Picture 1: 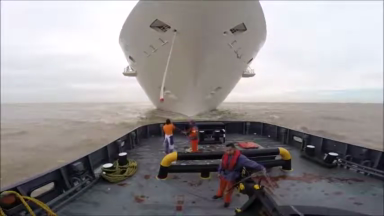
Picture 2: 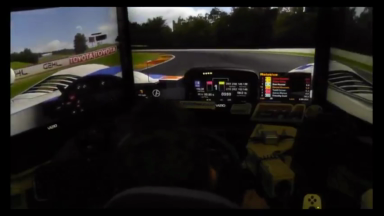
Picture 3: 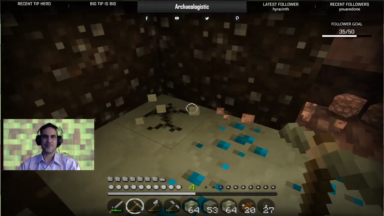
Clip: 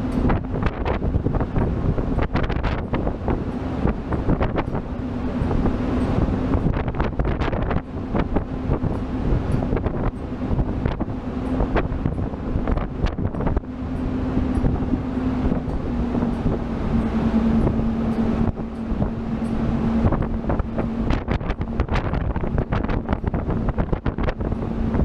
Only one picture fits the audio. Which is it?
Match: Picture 1